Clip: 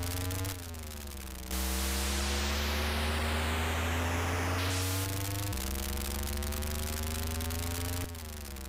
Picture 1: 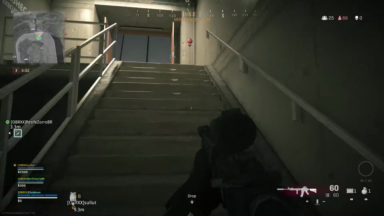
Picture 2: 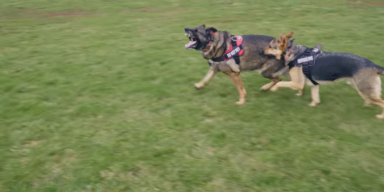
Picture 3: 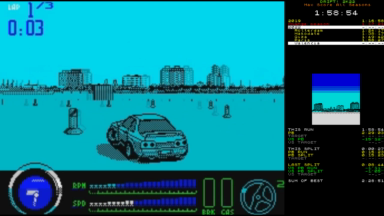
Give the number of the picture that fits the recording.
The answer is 3